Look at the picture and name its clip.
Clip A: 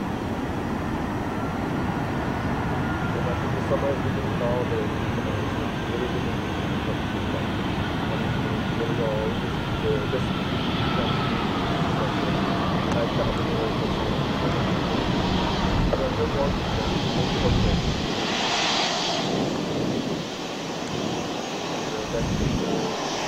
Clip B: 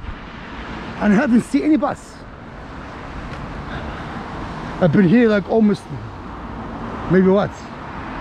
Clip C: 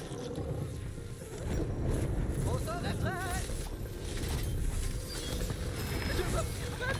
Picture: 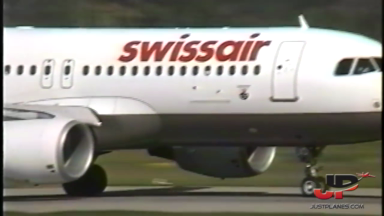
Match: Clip A